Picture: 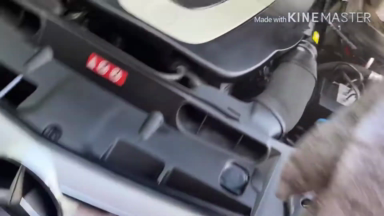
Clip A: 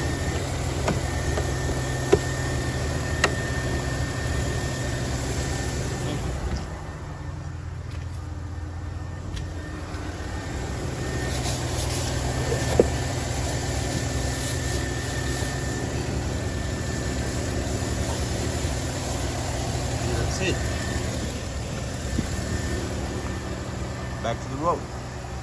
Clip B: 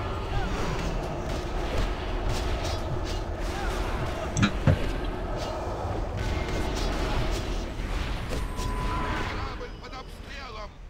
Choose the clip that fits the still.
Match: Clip A